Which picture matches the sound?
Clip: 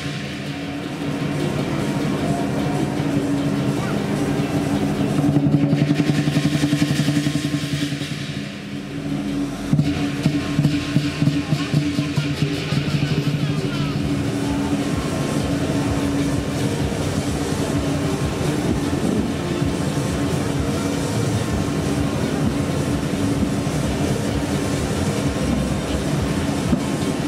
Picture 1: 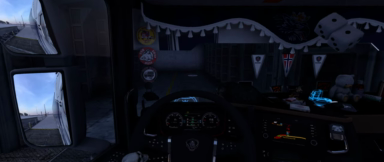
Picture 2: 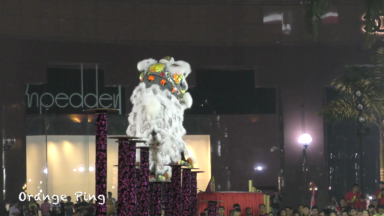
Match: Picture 2